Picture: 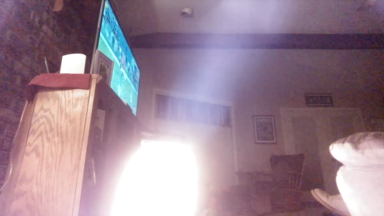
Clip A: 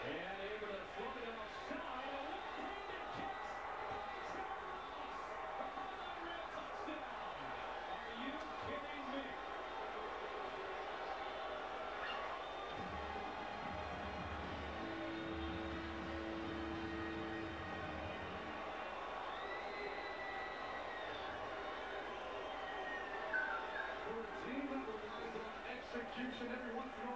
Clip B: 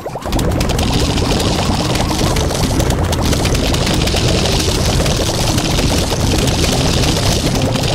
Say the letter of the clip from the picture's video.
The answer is A